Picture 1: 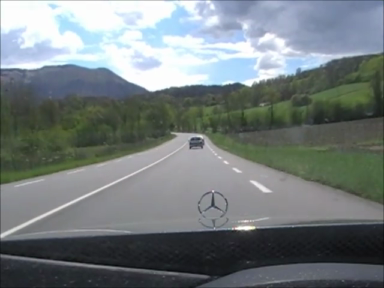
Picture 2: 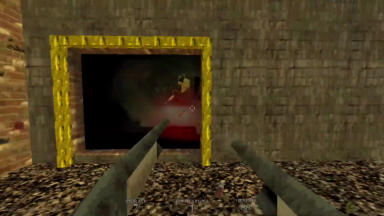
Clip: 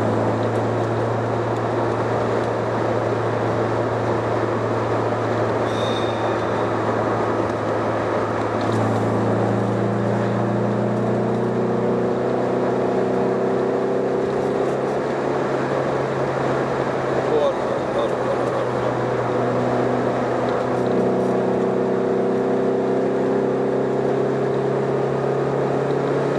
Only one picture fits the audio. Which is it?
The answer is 1